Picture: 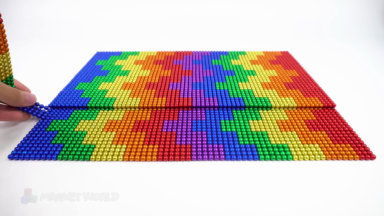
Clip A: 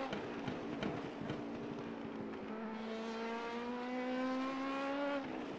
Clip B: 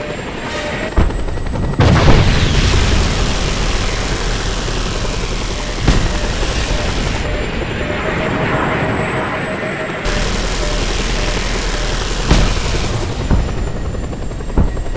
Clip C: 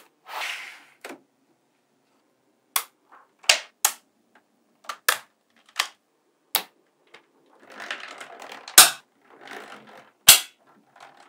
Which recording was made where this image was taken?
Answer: C